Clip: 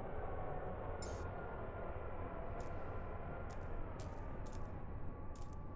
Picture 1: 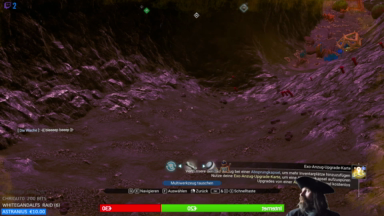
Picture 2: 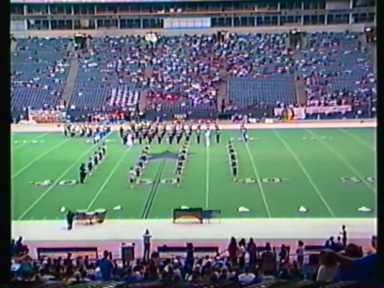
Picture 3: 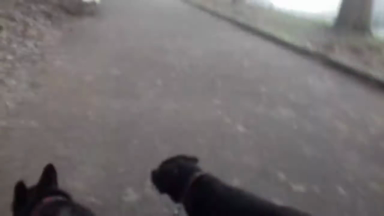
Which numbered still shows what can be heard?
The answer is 1